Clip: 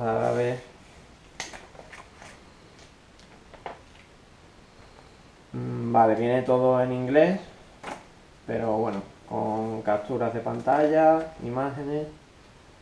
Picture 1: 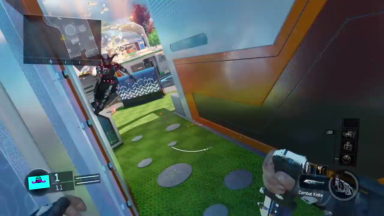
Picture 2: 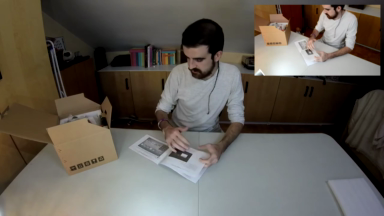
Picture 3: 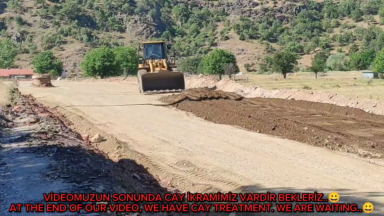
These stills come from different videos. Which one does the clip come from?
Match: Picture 2